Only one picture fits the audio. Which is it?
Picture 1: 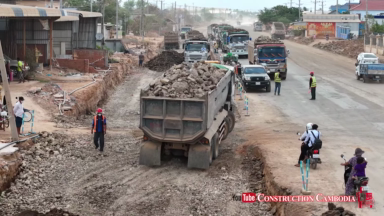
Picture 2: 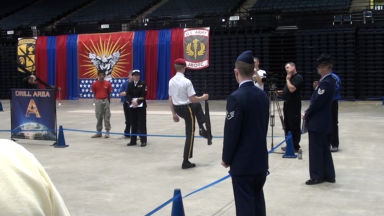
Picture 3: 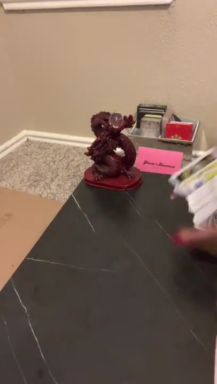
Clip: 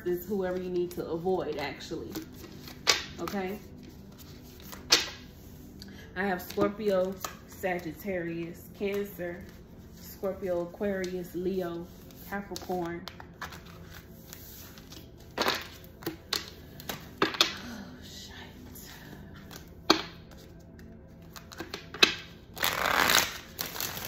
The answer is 3